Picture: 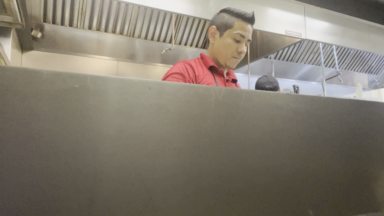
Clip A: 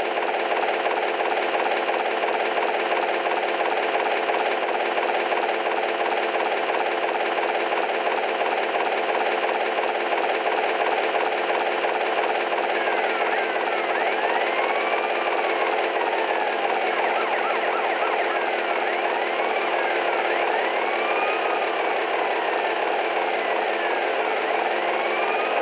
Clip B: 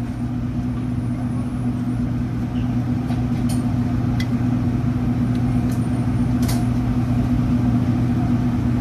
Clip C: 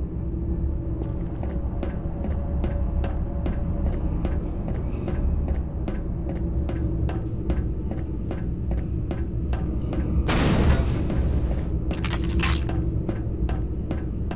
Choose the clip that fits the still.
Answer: B